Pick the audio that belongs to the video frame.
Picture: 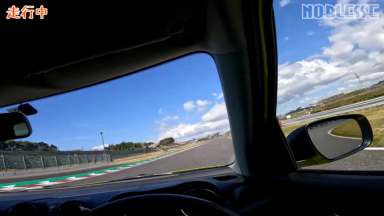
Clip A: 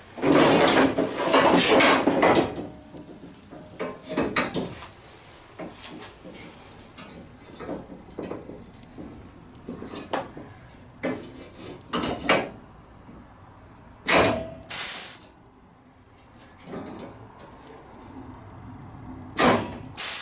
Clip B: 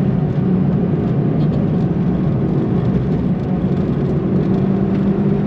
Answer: B